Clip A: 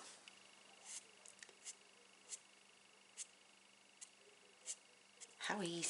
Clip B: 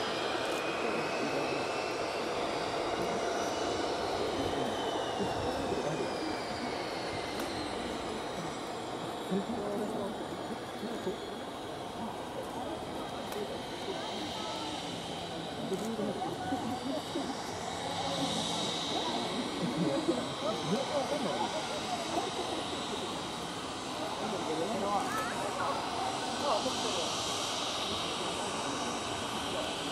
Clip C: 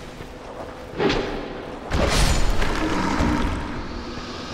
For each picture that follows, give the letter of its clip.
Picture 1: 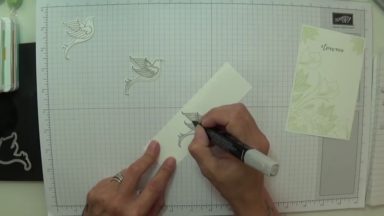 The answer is A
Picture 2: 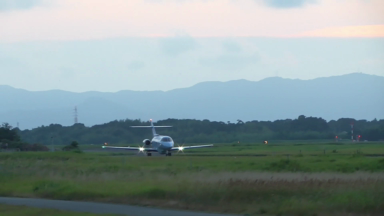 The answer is B